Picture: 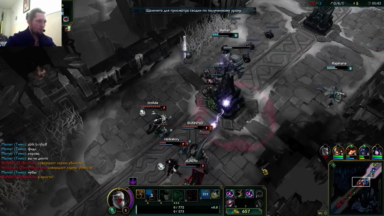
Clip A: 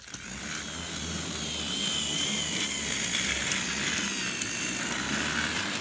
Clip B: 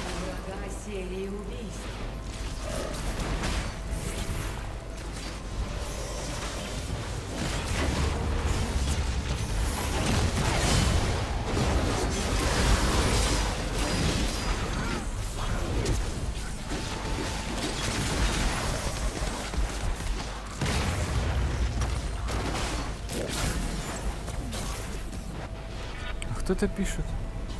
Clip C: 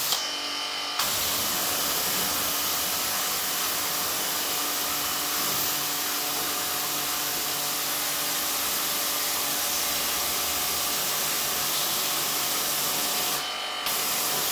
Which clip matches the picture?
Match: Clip B